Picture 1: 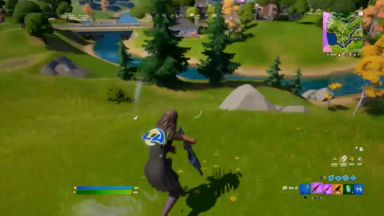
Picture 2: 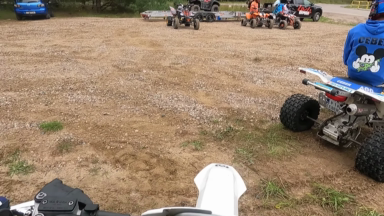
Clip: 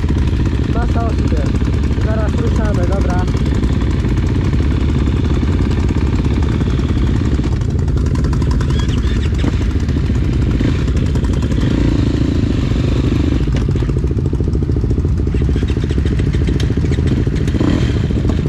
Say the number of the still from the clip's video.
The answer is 2